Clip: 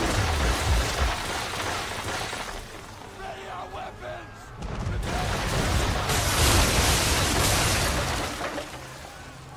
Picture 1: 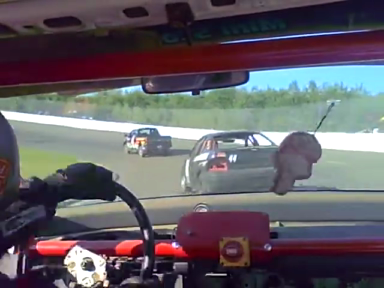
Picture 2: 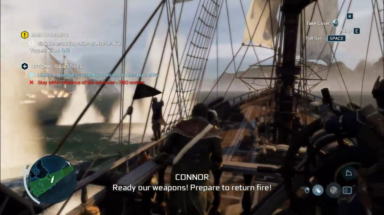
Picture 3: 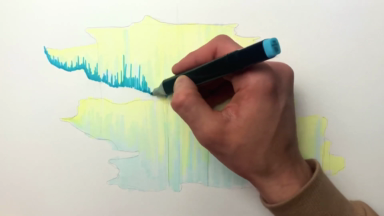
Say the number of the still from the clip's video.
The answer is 2